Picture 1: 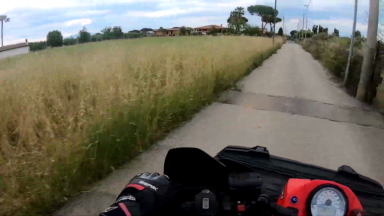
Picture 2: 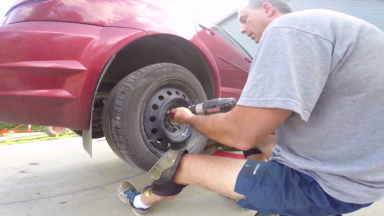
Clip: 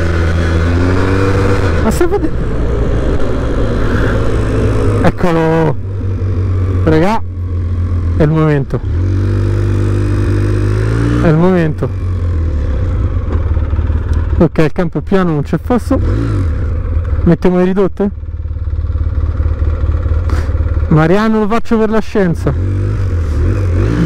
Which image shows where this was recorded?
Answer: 1